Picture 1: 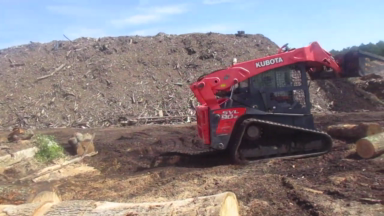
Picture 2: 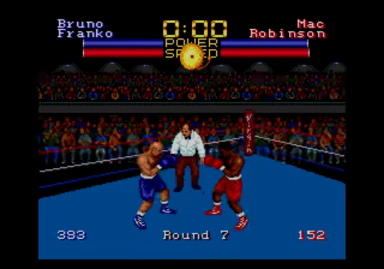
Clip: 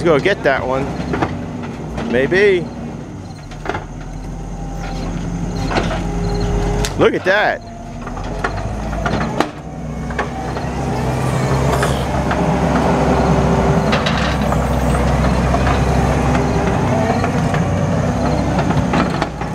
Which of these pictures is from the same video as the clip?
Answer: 1